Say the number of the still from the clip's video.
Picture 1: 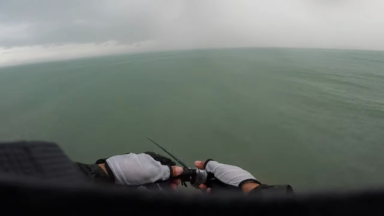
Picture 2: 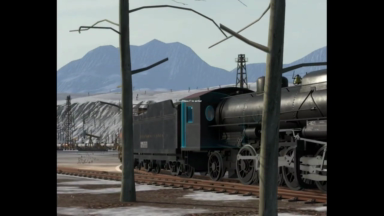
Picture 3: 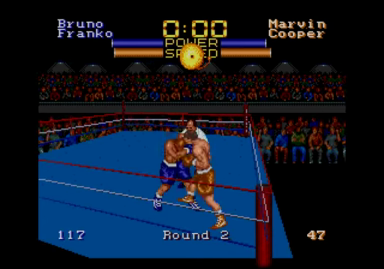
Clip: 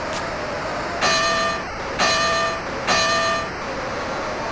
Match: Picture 3